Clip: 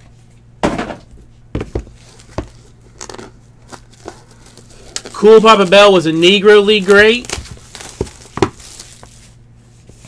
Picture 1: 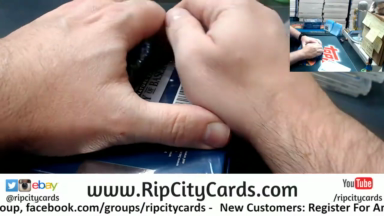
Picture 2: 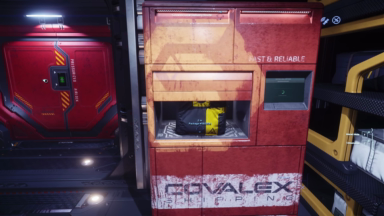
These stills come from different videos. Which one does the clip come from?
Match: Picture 1